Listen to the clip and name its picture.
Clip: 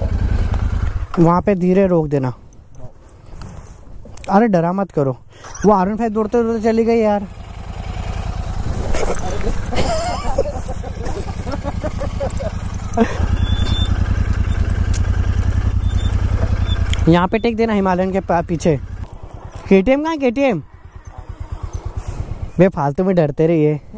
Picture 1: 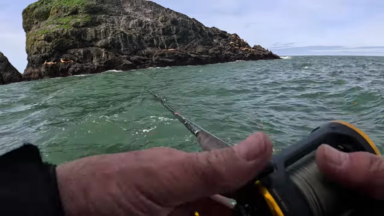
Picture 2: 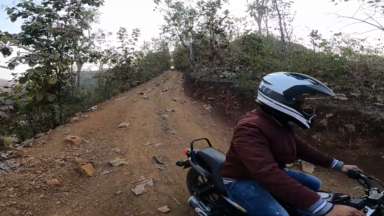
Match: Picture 2